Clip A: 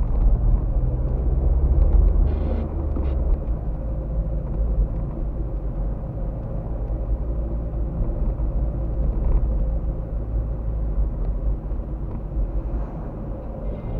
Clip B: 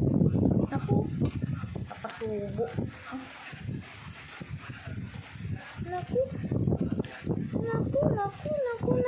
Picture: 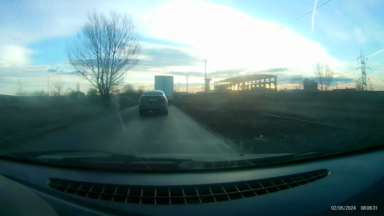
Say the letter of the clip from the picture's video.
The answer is A